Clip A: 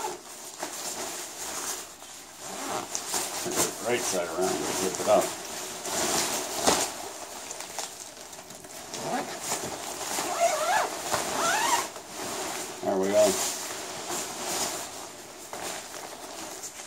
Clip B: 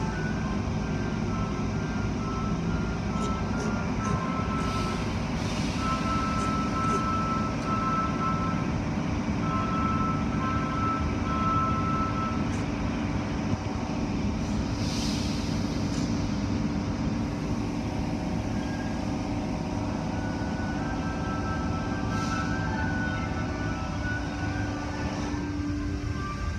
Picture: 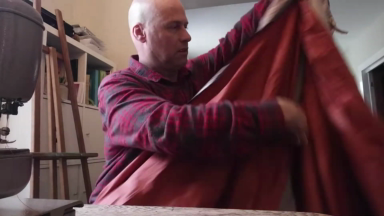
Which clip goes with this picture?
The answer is A